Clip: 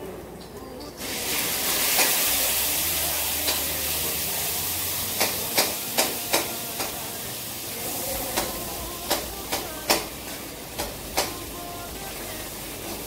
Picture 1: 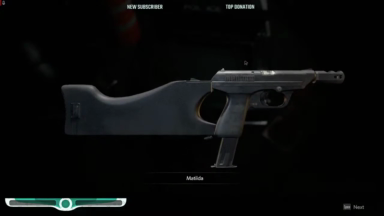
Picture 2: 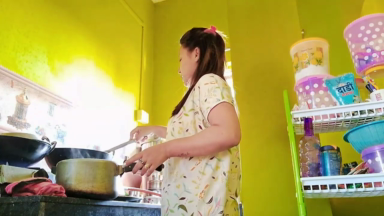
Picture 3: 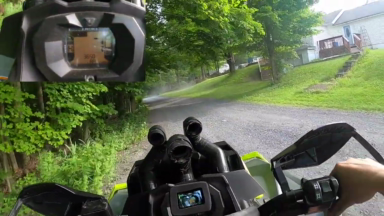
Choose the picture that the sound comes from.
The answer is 2